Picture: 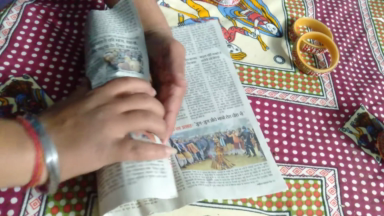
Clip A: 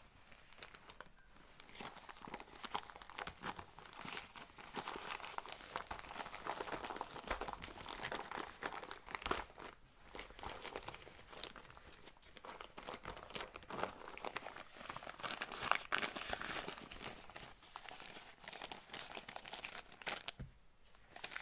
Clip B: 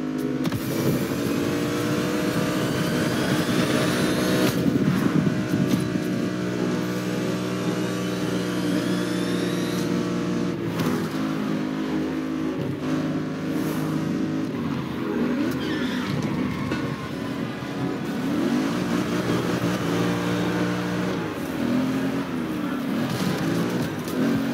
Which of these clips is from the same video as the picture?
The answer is A